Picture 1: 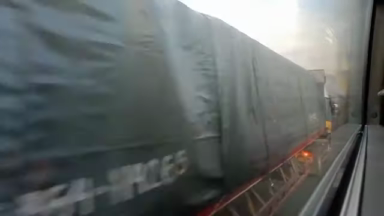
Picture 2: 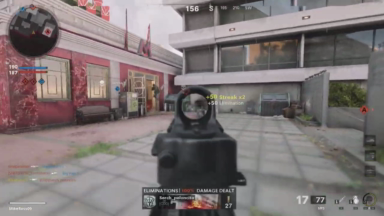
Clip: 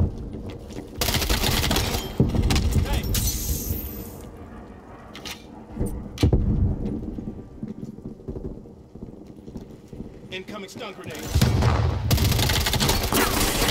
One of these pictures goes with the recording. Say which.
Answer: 2